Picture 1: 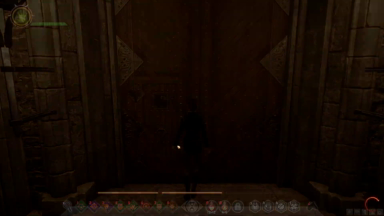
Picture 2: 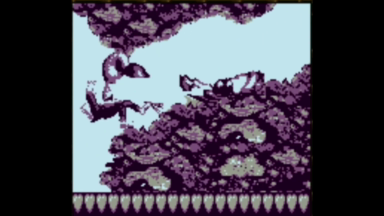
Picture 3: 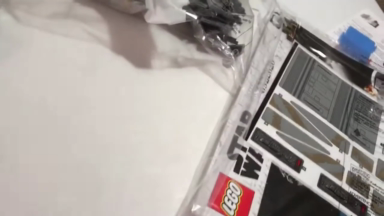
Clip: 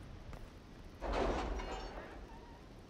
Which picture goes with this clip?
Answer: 1